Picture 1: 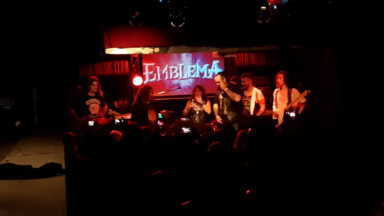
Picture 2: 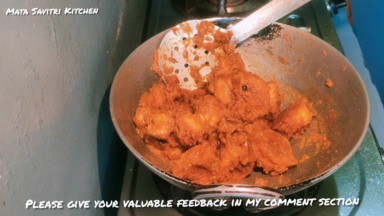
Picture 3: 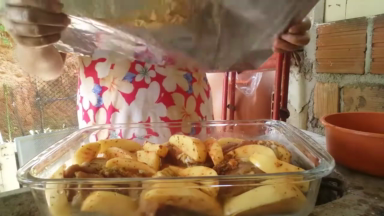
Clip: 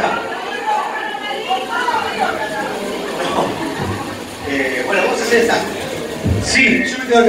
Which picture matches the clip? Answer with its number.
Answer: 1